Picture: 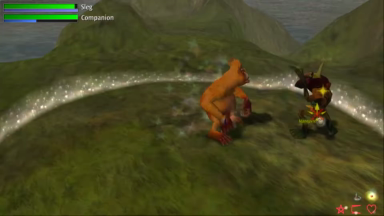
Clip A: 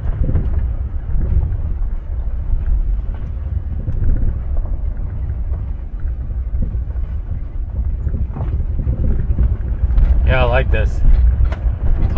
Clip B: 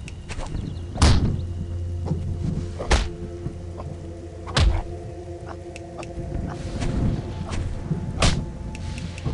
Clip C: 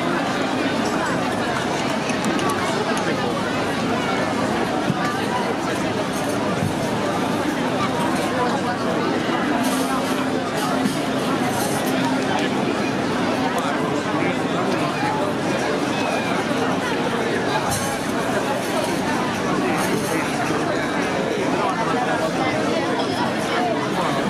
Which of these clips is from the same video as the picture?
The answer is B